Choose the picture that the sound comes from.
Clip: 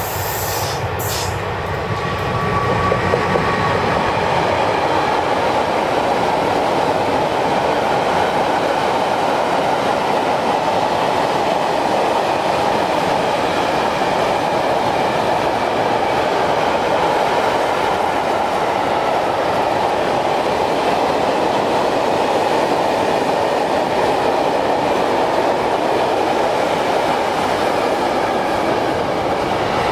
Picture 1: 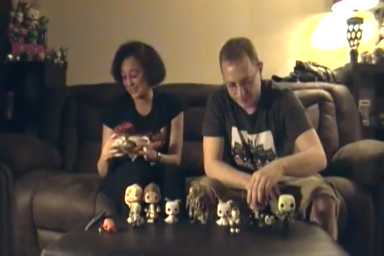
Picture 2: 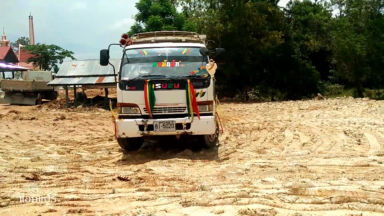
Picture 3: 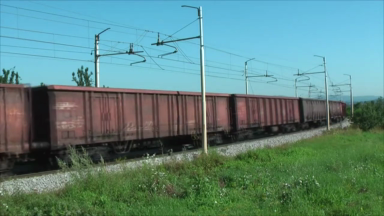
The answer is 3